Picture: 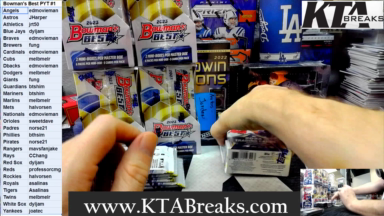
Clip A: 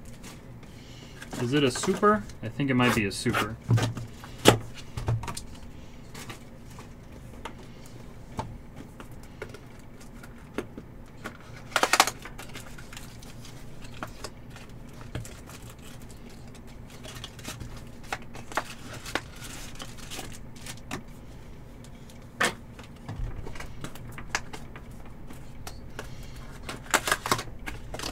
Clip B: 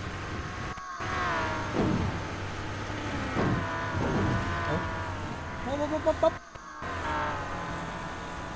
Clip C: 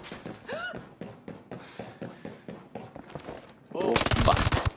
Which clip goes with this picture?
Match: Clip A